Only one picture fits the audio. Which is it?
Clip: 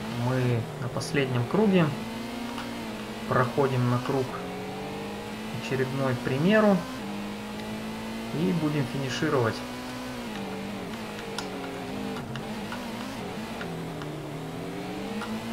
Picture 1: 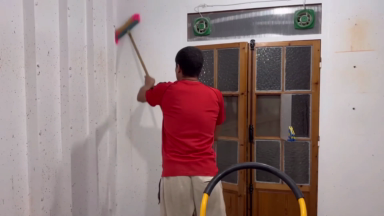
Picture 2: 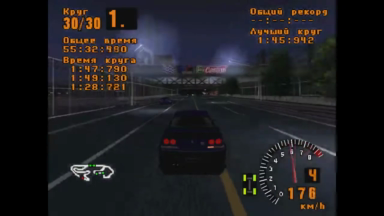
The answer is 2